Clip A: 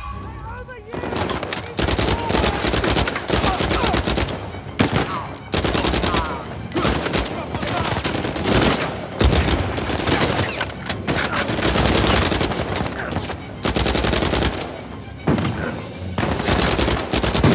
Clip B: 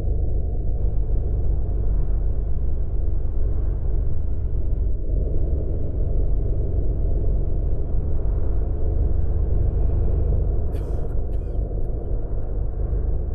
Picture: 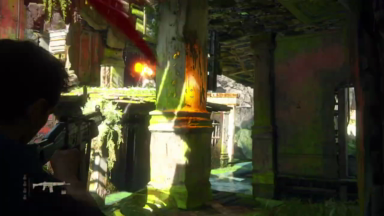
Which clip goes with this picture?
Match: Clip A